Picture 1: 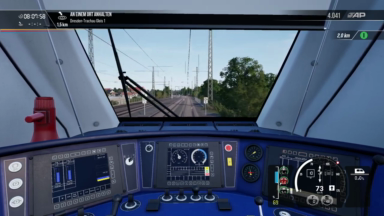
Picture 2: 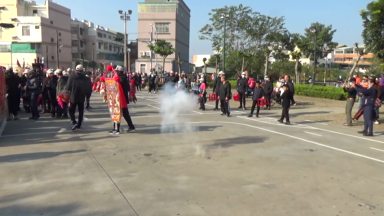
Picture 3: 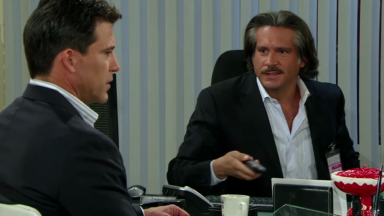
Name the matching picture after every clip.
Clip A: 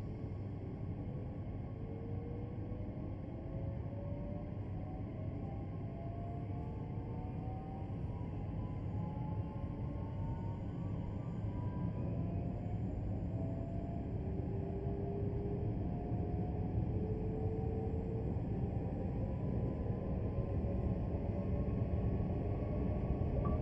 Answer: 1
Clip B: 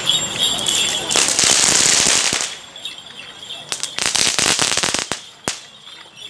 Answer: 2